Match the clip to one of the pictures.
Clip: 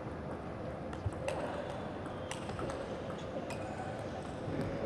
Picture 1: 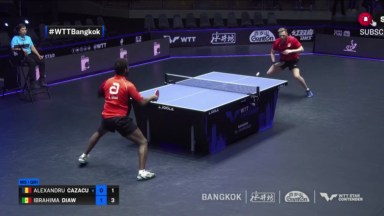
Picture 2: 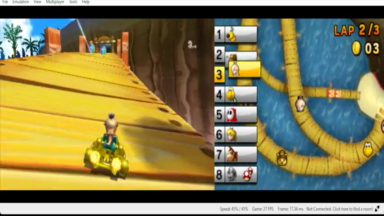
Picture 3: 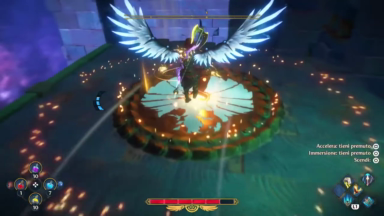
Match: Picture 1